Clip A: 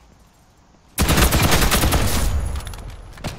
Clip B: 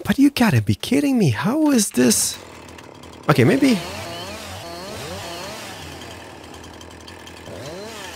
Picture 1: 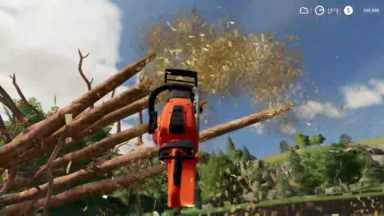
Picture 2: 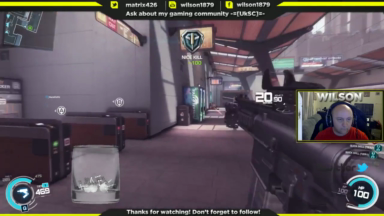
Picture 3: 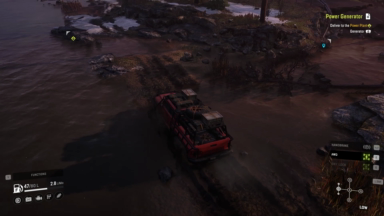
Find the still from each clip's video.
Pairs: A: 2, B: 1